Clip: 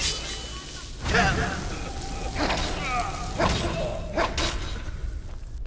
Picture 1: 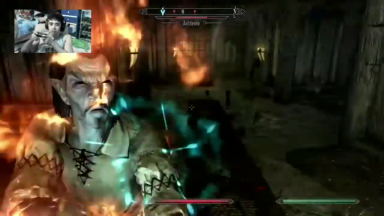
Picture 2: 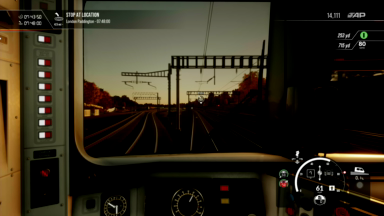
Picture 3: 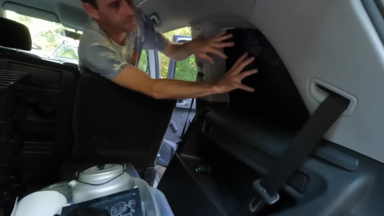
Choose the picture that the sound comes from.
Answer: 1